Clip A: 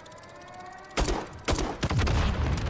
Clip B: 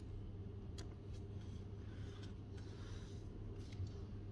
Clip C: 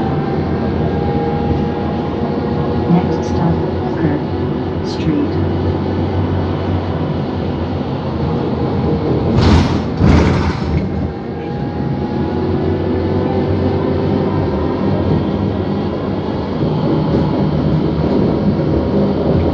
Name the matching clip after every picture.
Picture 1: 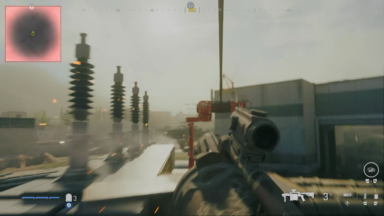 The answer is A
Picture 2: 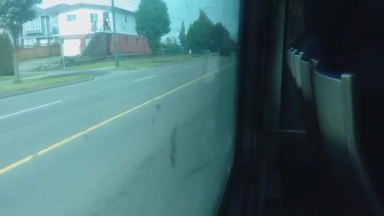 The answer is C